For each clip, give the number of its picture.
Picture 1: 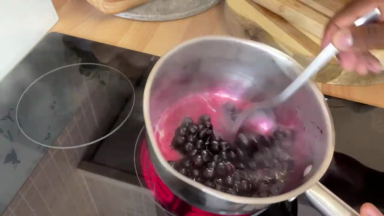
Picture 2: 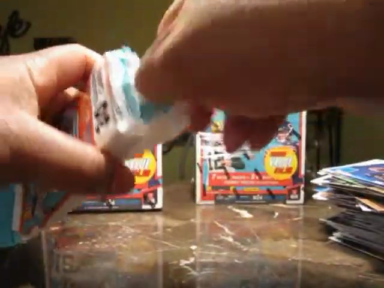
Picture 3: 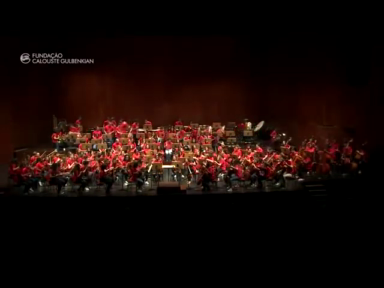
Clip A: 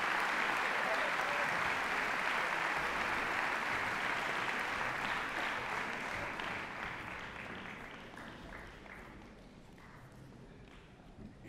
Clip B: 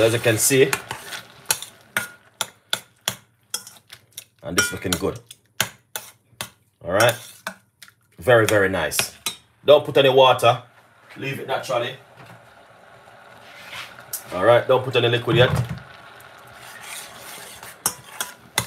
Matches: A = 3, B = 1